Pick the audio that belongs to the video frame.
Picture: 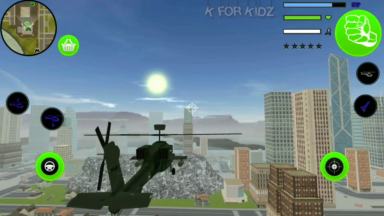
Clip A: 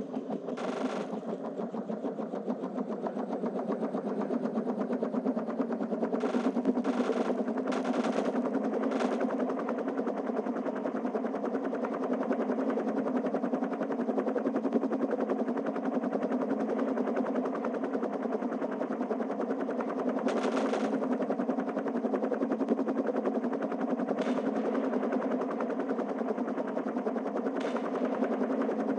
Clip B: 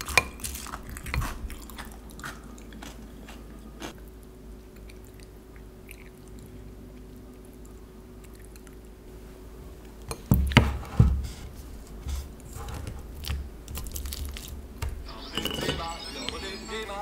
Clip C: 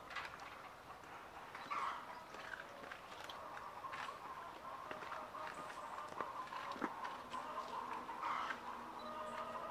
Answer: A